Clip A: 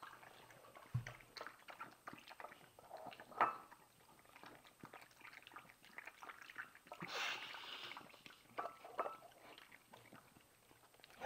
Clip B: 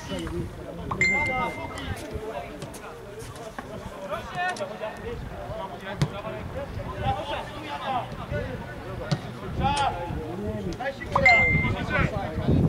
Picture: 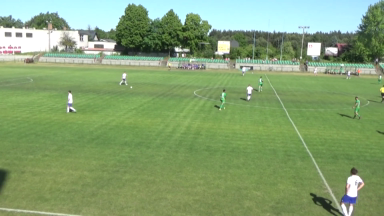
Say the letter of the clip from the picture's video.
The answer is B